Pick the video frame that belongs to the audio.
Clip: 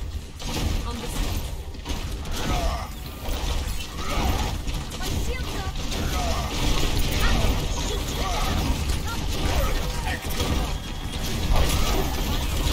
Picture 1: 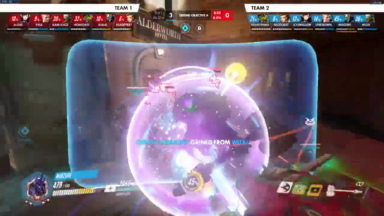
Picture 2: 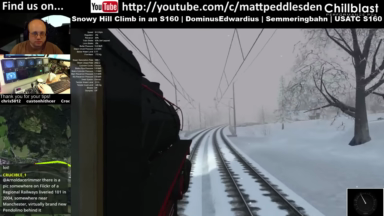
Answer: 1